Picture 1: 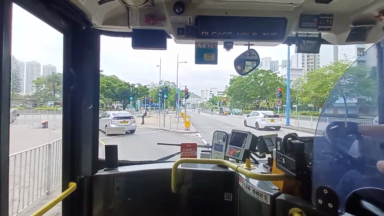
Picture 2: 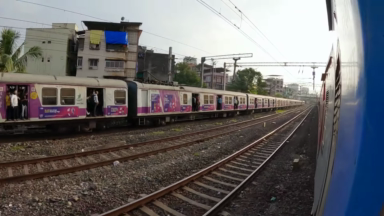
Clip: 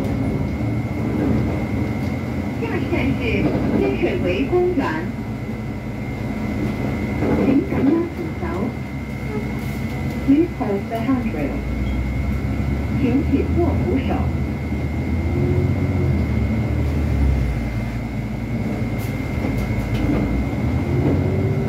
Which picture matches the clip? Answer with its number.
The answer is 1